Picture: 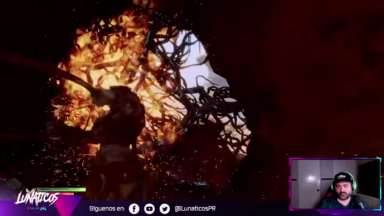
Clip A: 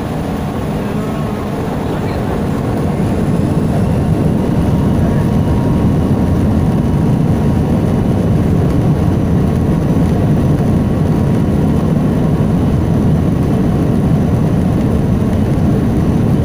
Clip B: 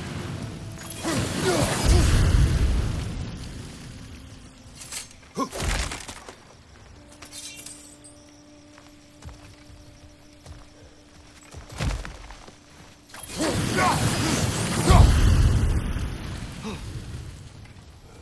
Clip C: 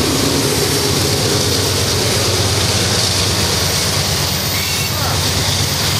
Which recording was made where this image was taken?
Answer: B